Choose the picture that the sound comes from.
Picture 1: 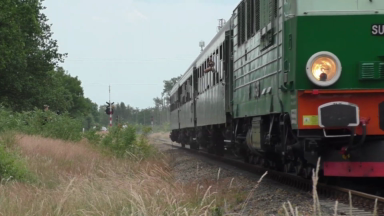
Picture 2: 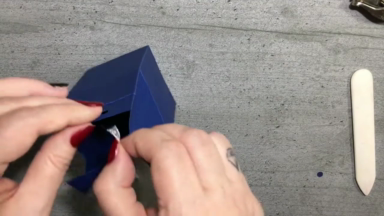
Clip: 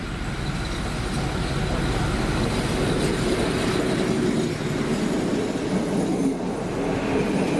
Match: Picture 1